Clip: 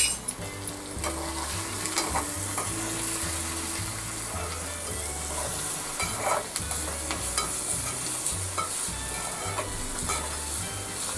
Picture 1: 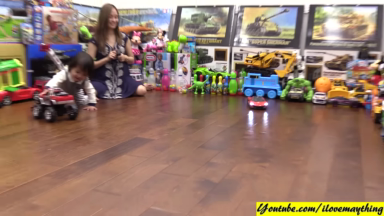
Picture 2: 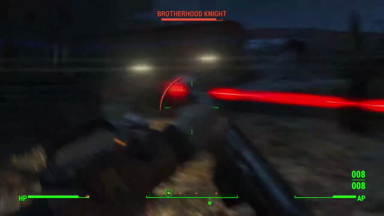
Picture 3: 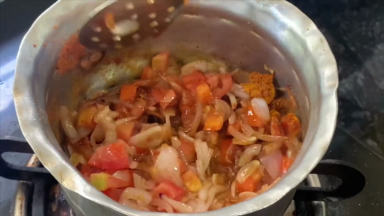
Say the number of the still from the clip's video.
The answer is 3